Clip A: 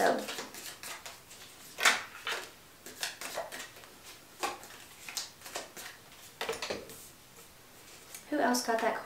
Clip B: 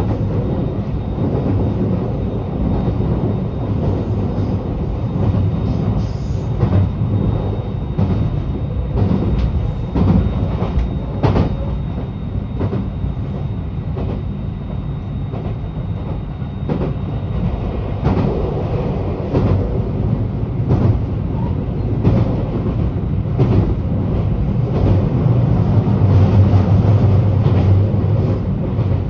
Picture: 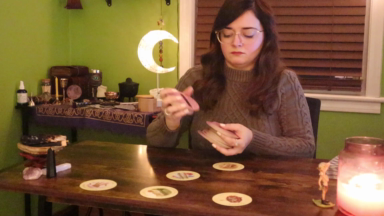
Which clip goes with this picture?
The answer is A